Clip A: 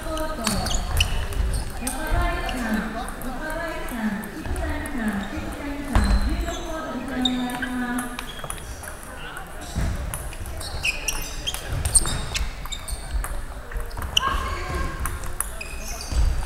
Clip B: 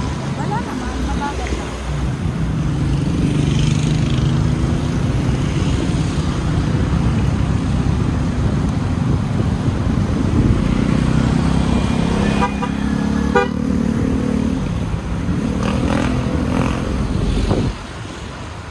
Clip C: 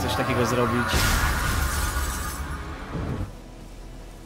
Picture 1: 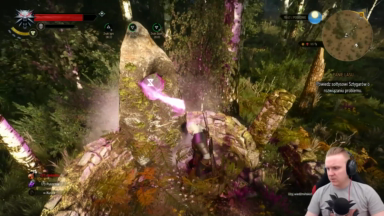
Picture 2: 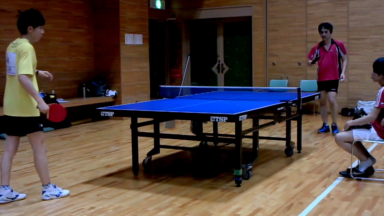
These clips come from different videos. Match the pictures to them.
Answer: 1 C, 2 A